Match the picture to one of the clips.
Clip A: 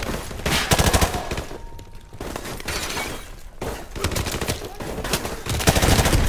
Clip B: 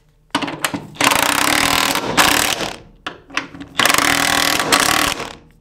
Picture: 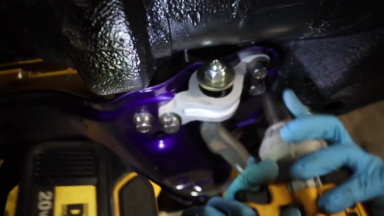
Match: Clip B